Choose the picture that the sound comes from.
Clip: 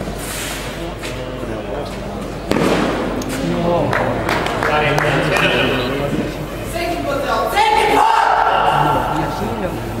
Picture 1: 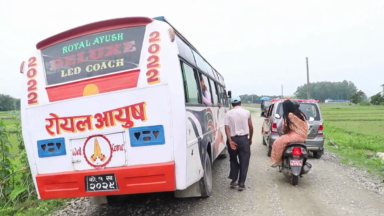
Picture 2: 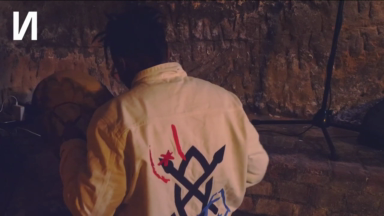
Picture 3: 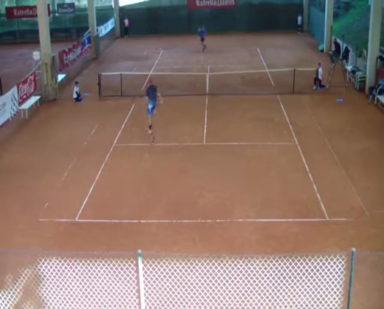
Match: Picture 3